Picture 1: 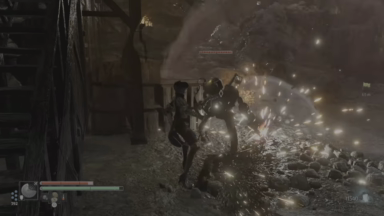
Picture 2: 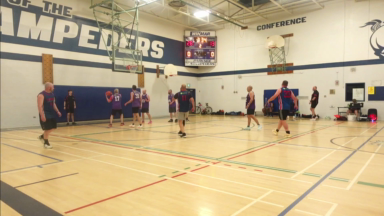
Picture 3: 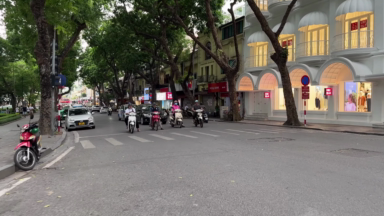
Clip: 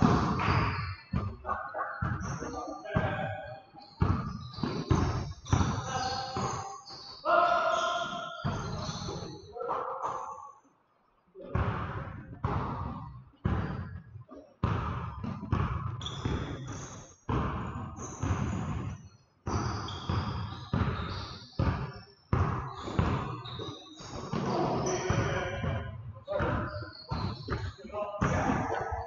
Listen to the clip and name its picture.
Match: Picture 2